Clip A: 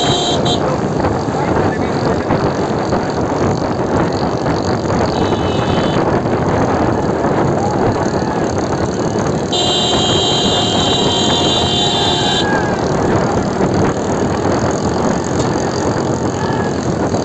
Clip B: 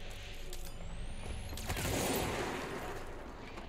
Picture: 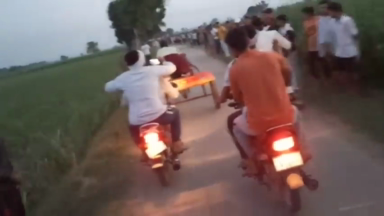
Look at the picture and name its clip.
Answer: A